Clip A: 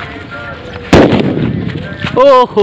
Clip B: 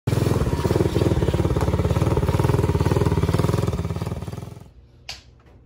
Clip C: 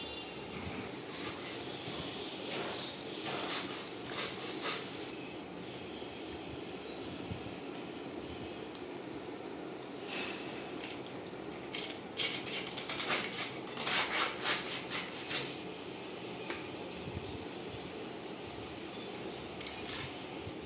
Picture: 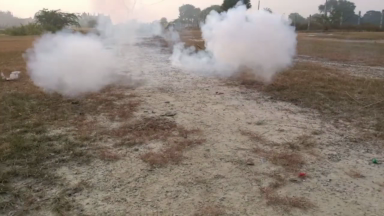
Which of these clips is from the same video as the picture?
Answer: A